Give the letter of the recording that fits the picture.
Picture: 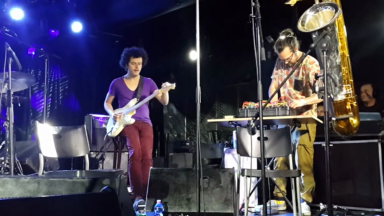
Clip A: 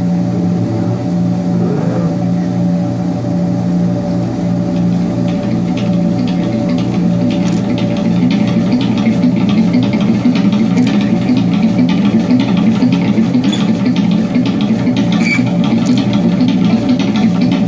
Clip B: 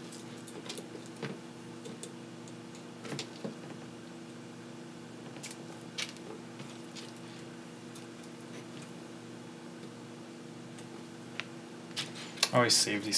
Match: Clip A